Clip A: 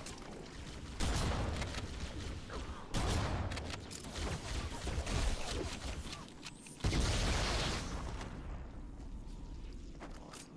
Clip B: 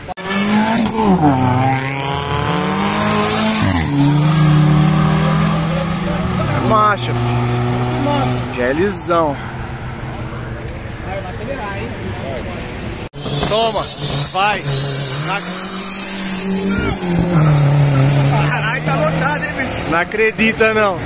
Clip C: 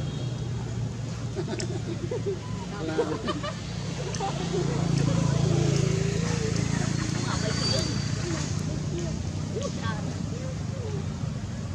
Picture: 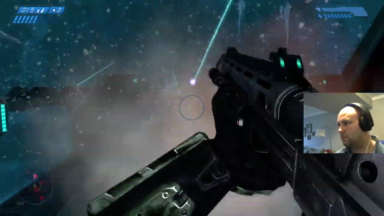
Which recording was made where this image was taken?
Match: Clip A